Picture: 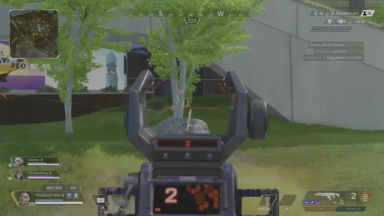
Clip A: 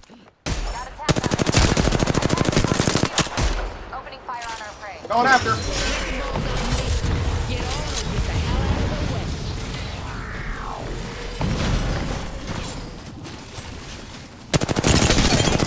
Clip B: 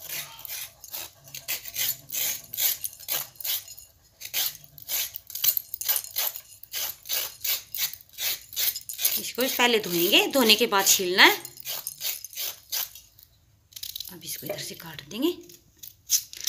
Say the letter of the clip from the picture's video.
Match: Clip A